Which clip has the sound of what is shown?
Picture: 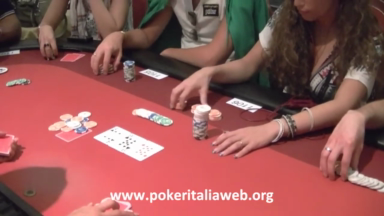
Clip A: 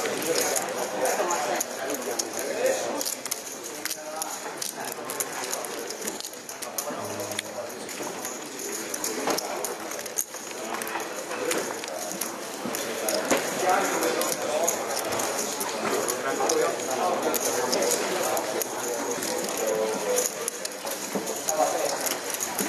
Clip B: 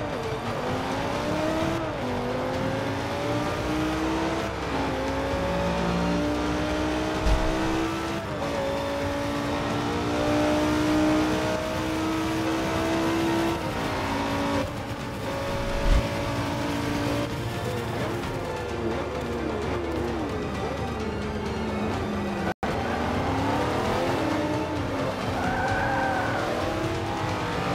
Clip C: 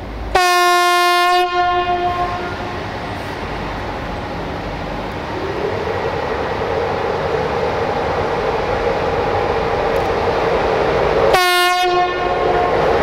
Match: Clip A